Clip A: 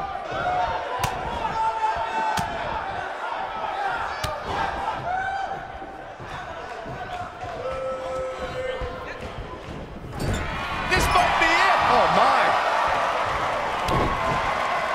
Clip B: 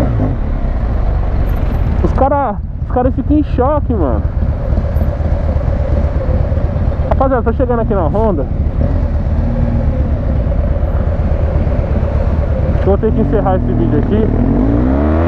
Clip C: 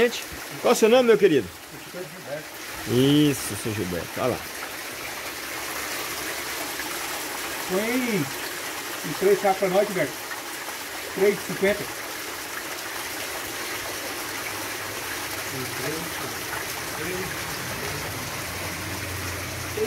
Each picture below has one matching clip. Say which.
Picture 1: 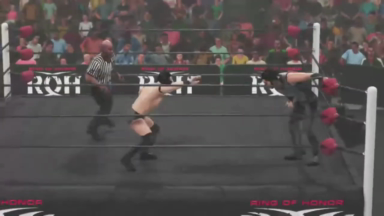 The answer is A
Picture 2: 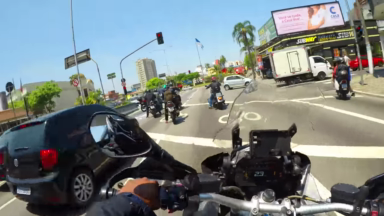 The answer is B